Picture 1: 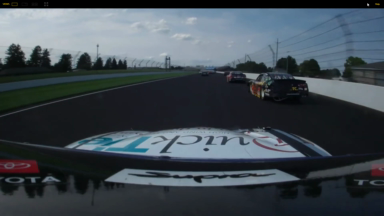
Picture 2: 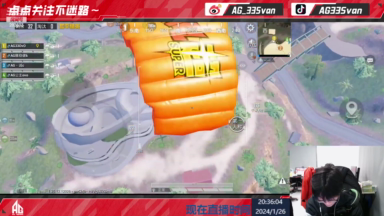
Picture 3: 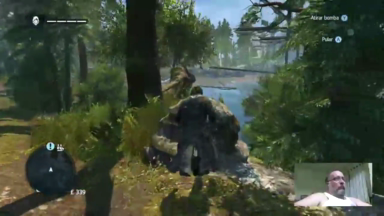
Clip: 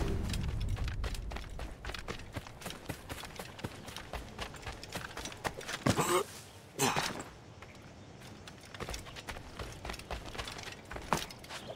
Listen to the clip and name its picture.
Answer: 3